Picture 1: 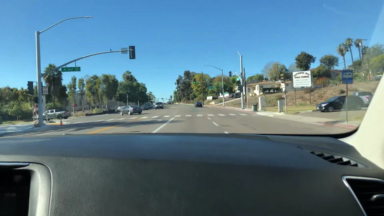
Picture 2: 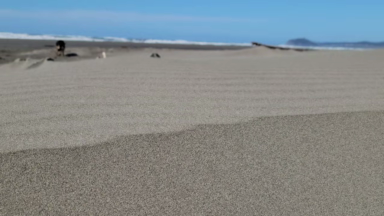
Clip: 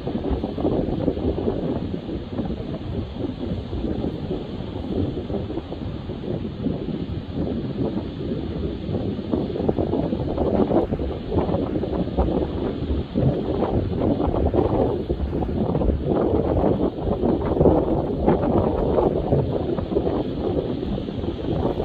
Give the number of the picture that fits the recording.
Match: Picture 2